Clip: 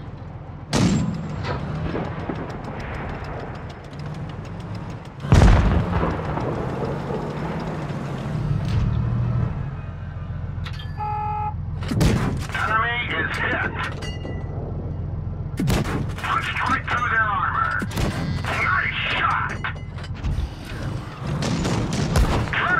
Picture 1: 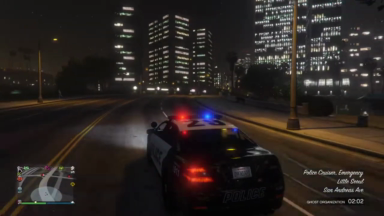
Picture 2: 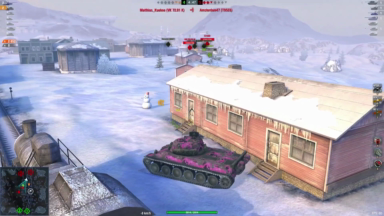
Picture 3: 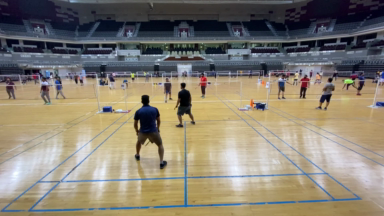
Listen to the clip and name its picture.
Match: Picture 2